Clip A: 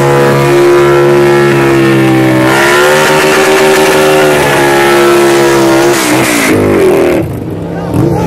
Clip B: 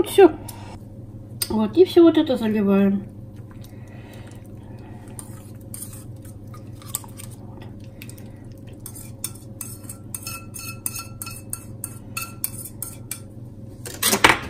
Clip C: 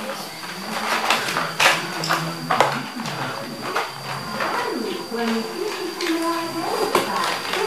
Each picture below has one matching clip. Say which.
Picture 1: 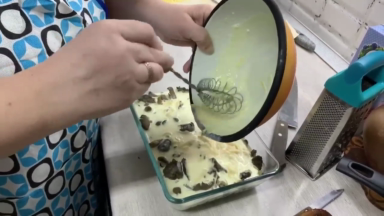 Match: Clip B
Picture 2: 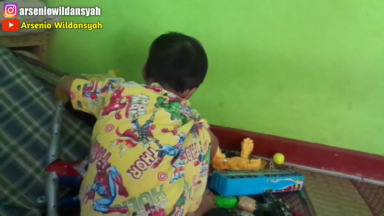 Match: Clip C